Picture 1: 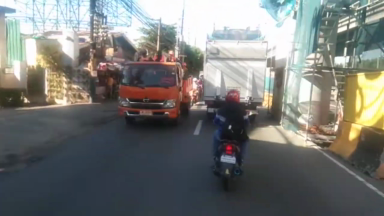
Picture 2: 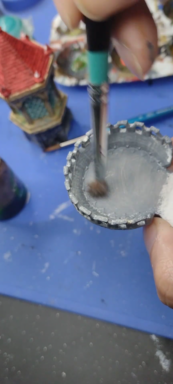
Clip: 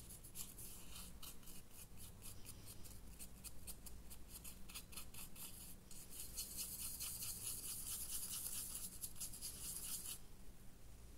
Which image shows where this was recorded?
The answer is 2